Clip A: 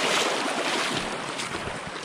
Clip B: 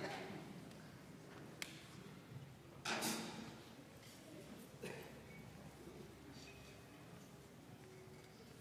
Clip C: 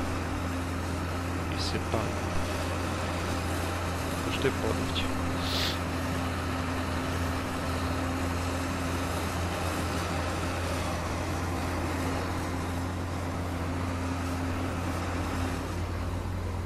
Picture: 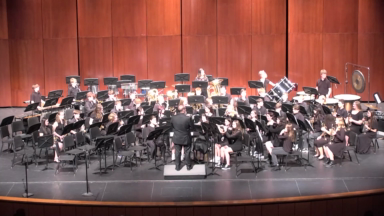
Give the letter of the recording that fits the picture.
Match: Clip B